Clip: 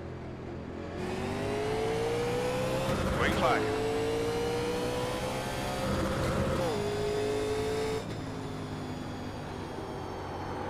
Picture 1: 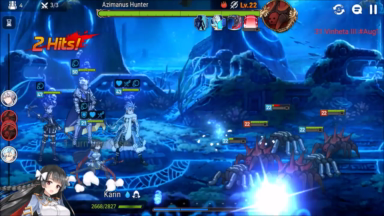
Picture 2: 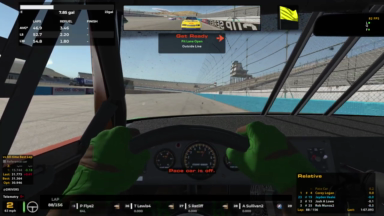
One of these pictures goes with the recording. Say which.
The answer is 2